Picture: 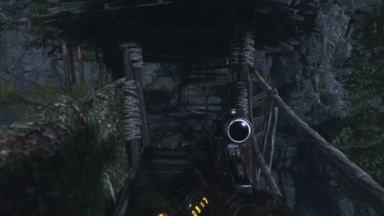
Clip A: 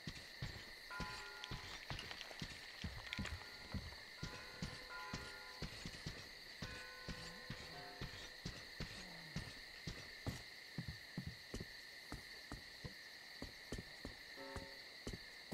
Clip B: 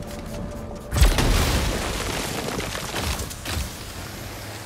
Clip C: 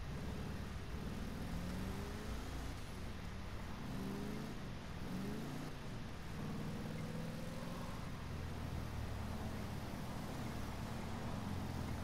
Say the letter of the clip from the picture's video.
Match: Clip A